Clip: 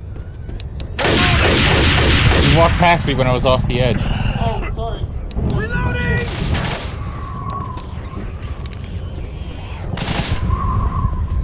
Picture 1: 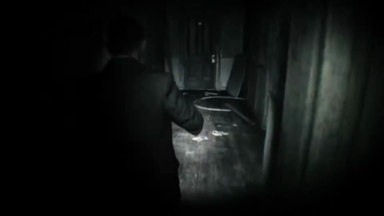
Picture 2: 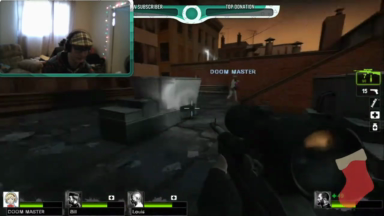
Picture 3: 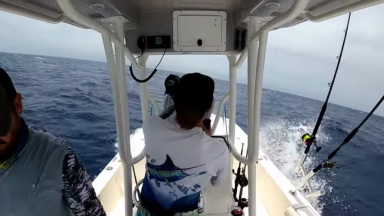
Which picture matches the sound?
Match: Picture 2